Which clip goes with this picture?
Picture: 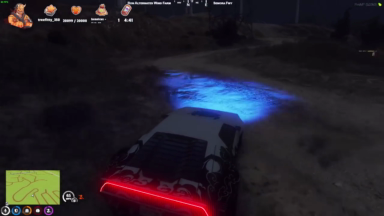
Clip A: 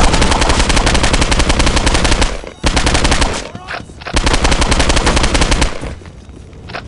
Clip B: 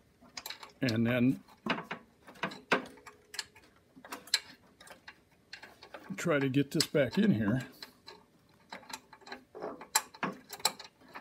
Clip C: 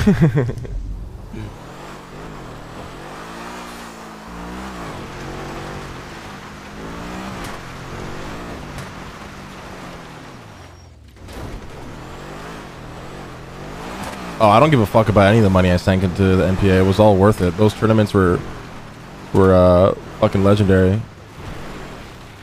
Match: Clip C